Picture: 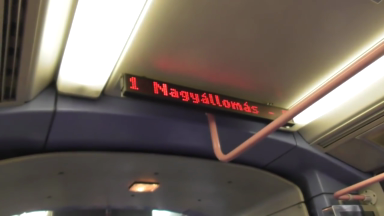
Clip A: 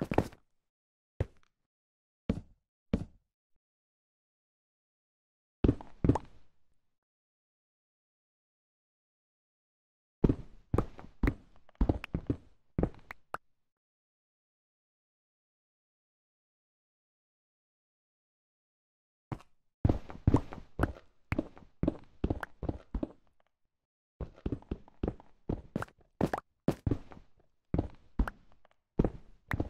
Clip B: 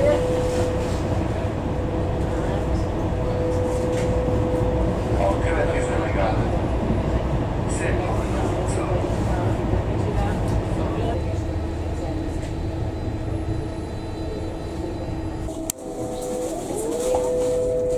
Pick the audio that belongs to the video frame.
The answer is B